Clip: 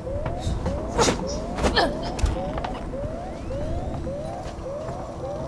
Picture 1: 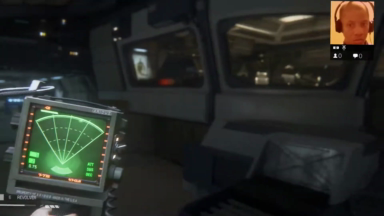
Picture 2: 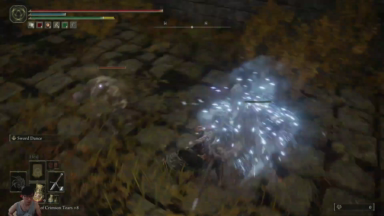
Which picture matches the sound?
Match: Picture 1